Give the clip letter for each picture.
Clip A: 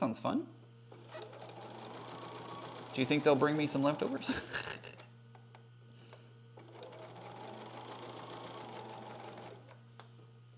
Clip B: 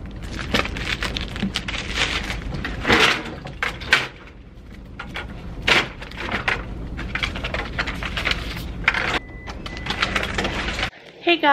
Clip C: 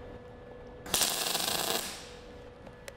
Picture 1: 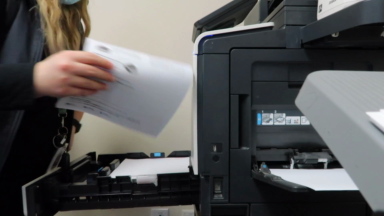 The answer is B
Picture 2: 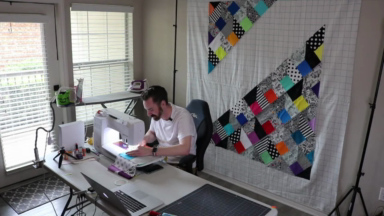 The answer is A